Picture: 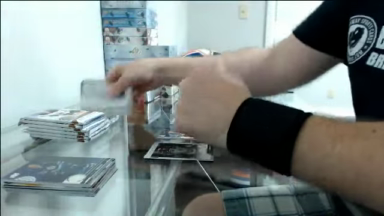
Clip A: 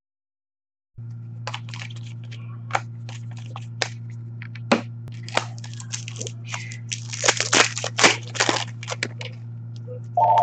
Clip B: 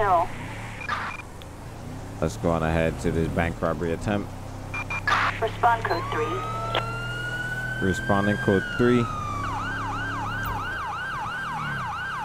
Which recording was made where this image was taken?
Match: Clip A